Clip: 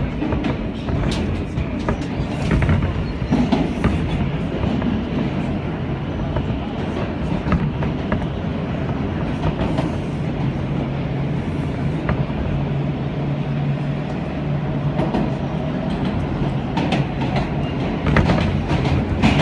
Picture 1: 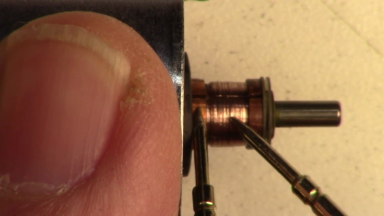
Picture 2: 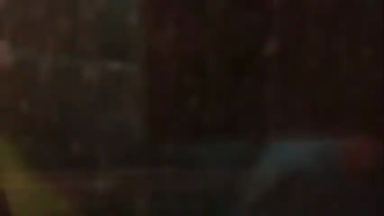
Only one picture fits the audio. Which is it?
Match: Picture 2